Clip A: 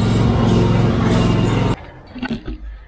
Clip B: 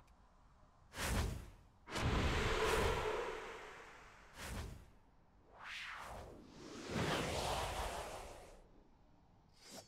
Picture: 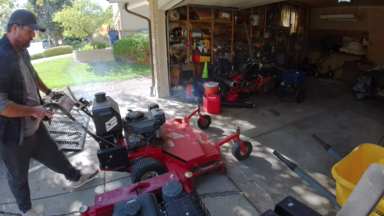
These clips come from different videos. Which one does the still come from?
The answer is A